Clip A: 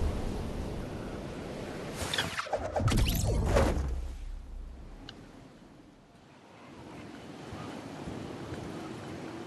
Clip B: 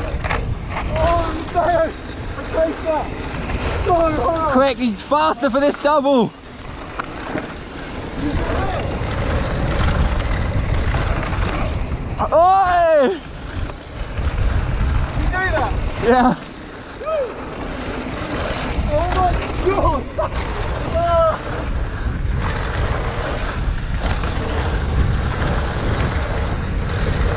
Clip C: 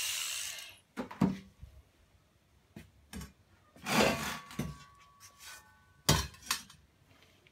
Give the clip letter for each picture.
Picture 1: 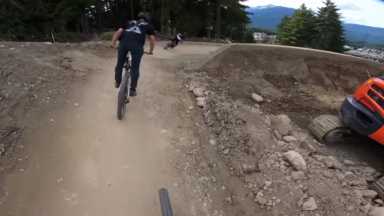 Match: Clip B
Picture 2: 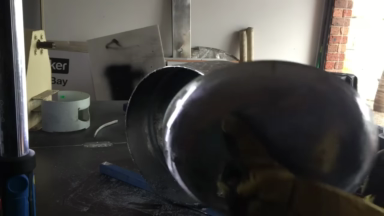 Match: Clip C